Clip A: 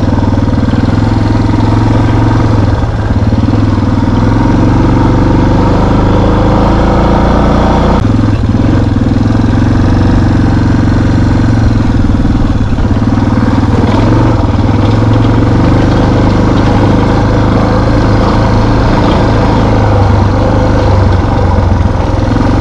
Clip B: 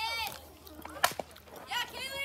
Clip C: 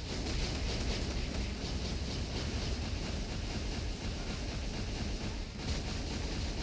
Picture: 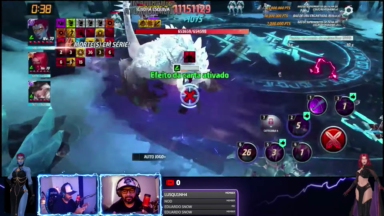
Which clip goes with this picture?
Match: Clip C